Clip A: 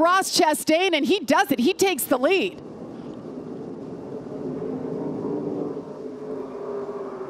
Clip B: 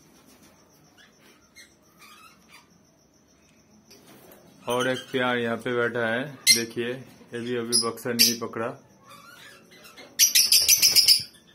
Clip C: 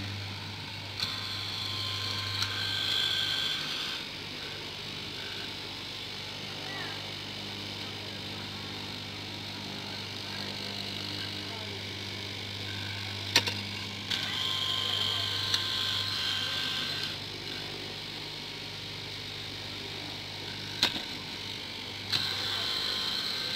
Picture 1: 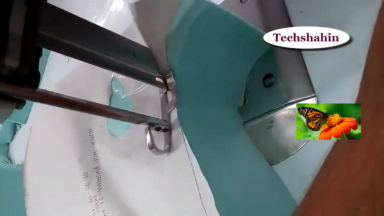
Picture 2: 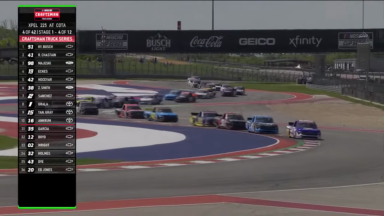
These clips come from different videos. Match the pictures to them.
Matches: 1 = C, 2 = A